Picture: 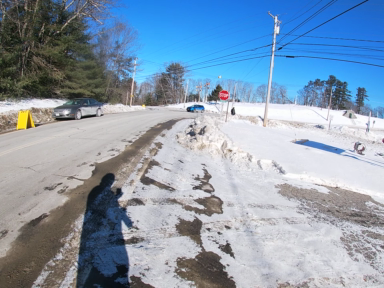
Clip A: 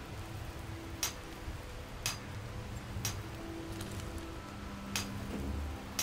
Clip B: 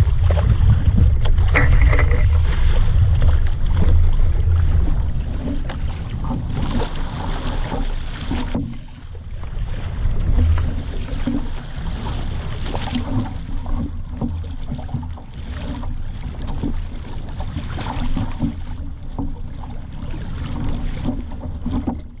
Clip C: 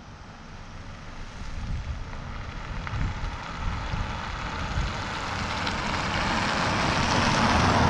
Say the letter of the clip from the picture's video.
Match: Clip C